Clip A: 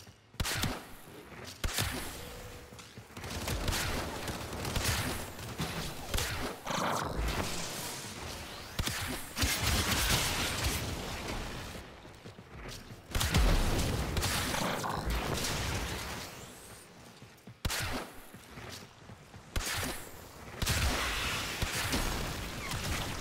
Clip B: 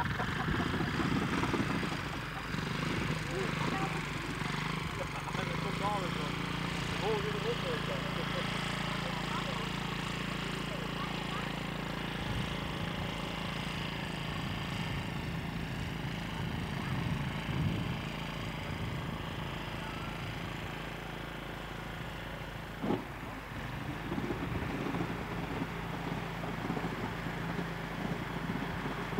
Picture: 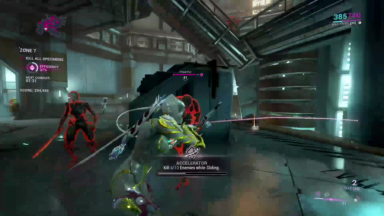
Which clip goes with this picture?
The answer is A